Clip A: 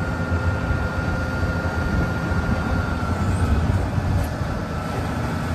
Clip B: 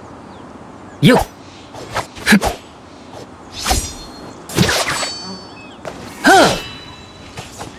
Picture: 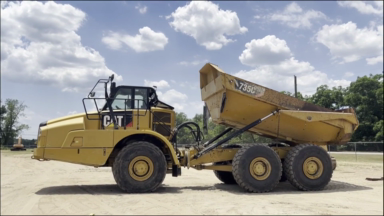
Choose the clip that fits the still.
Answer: A